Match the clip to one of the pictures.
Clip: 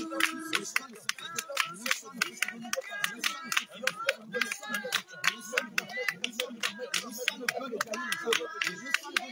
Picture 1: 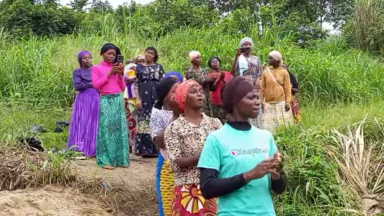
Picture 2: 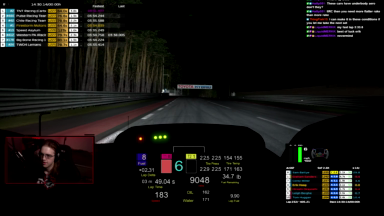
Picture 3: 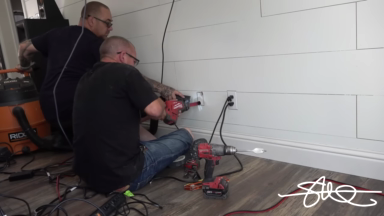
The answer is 1